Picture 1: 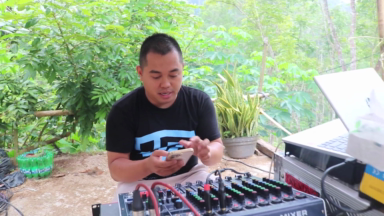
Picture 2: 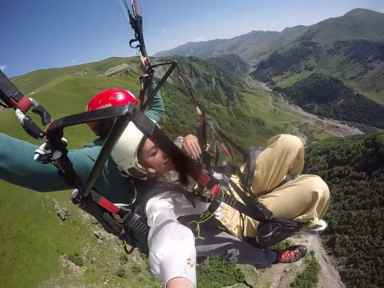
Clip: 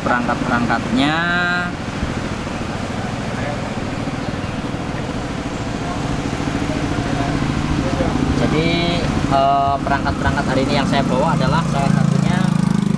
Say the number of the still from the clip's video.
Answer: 1